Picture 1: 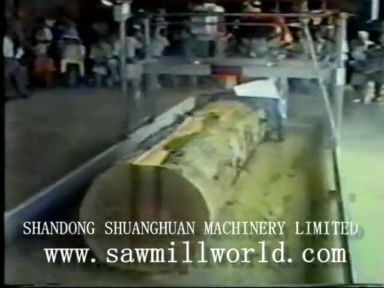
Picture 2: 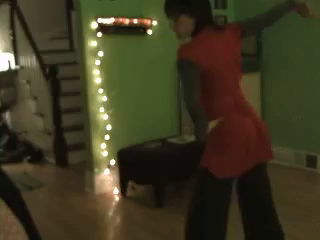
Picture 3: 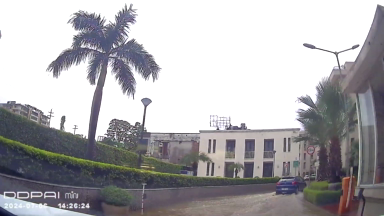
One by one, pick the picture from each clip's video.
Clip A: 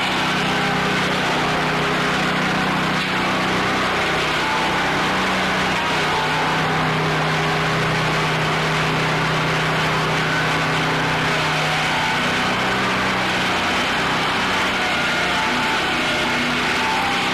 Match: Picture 1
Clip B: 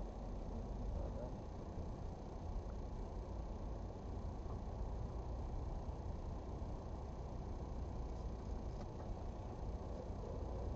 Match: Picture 3